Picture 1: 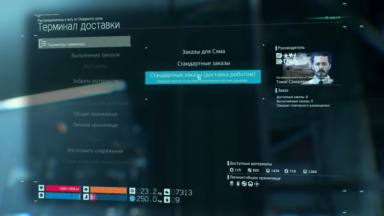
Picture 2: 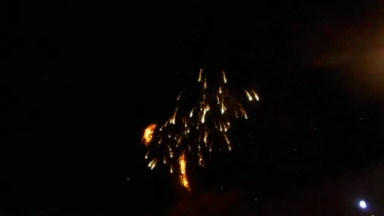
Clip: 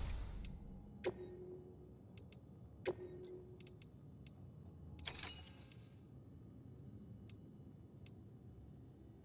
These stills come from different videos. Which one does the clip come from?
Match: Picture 1